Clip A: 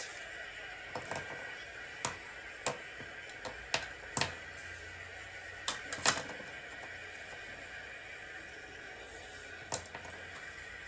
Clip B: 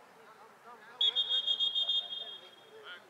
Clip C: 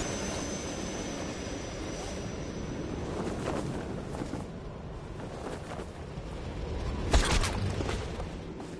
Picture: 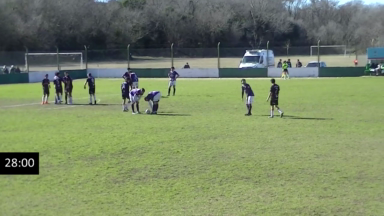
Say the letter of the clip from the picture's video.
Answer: B